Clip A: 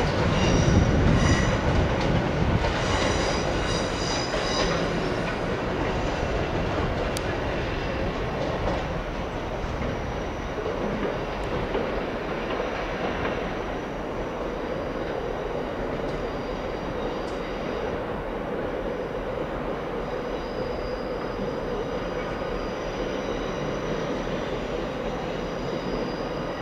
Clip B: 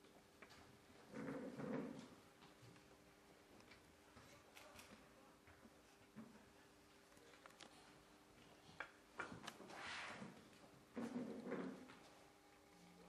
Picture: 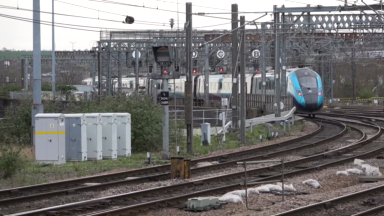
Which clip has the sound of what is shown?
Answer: A